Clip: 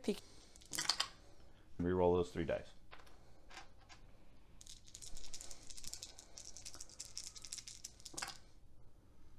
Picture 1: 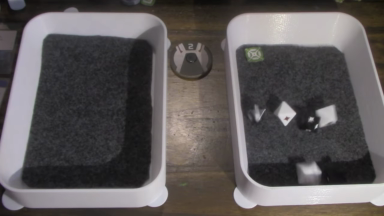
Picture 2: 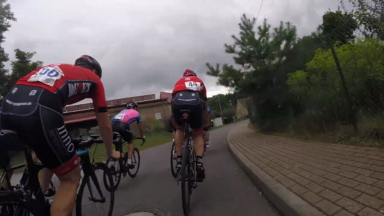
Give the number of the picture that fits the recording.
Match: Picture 1